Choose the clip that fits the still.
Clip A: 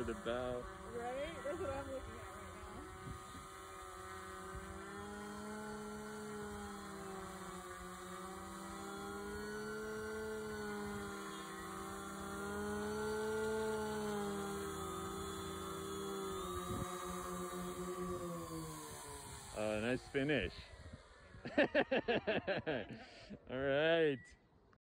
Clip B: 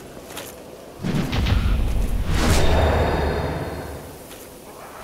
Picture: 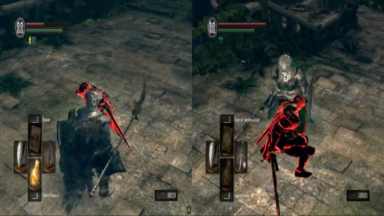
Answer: B